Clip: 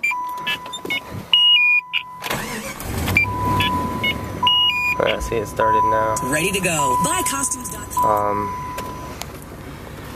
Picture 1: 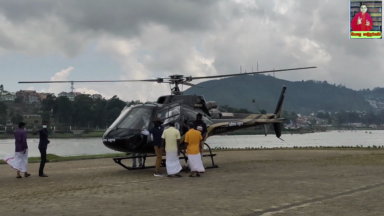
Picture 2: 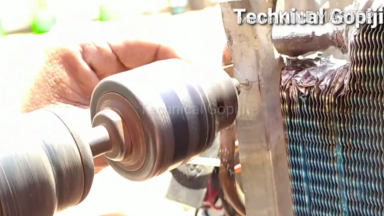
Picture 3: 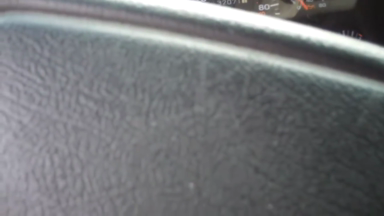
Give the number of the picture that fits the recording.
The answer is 3